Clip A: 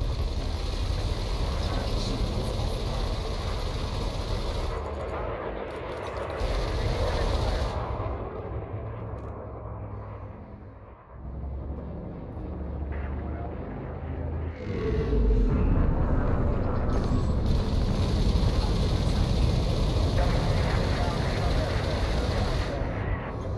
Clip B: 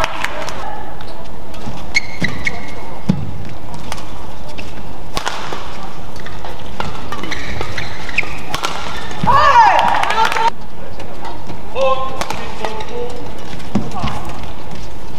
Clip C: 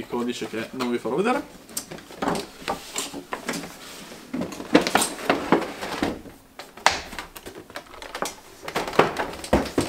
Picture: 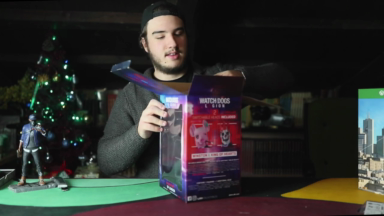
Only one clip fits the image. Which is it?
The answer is C